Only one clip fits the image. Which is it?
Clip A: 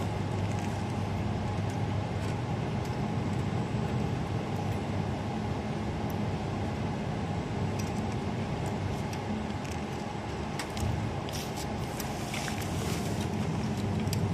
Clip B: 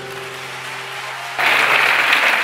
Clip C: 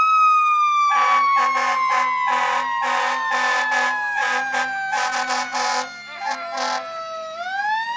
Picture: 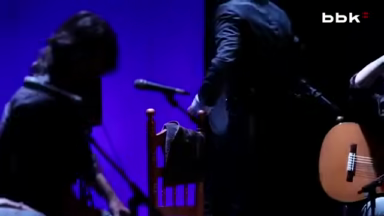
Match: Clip B